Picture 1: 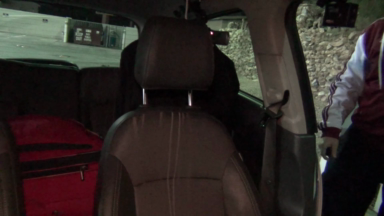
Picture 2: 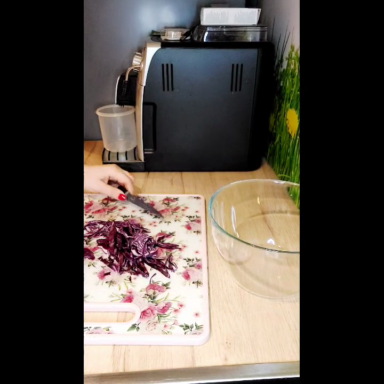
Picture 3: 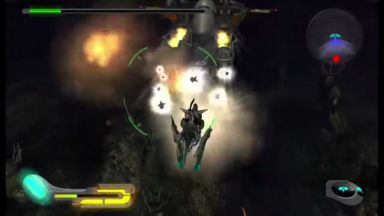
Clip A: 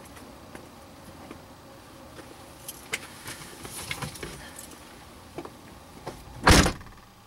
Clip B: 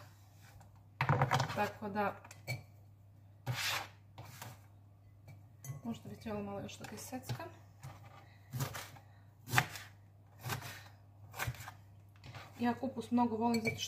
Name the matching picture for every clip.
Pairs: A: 1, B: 2